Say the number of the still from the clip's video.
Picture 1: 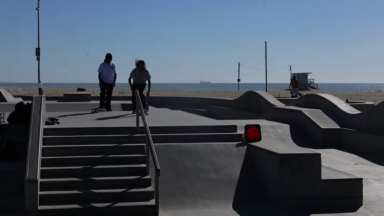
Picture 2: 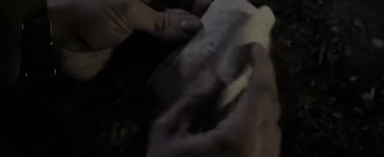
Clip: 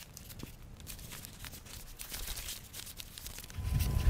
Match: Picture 2